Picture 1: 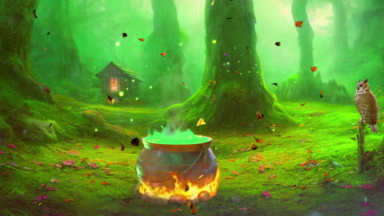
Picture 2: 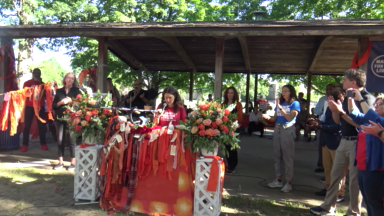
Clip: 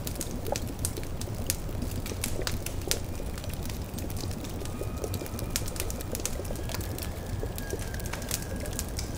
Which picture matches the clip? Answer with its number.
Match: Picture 1